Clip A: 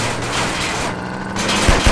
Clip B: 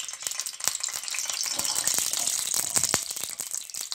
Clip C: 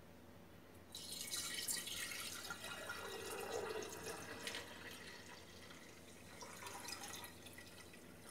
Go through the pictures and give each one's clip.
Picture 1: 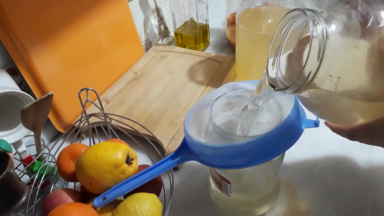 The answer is C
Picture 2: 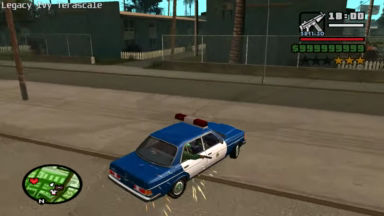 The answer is A